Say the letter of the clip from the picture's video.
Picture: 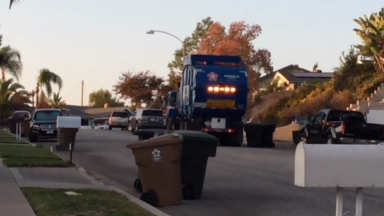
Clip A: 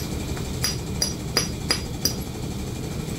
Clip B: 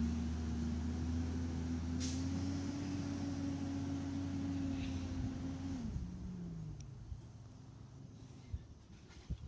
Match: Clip B